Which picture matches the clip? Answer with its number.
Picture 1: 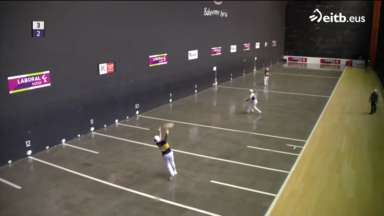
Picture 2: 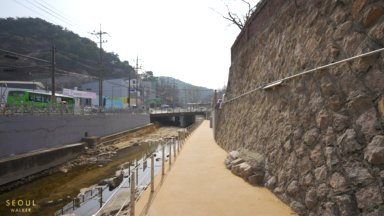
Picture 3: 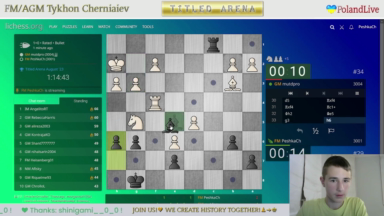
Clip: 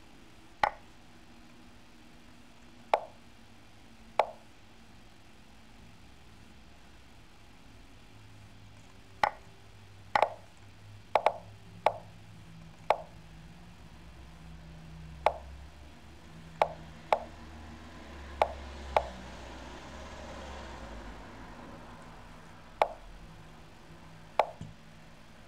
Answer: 3